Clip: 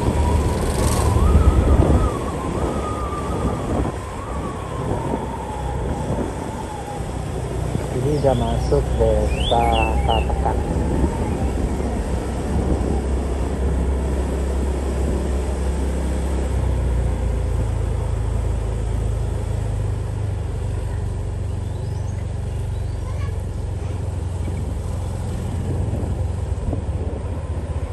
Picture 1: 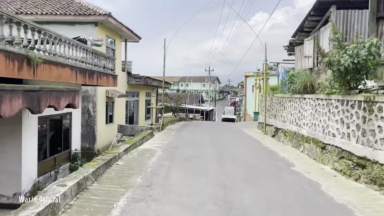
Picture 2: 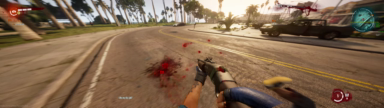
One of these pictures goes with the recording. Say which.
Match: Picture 1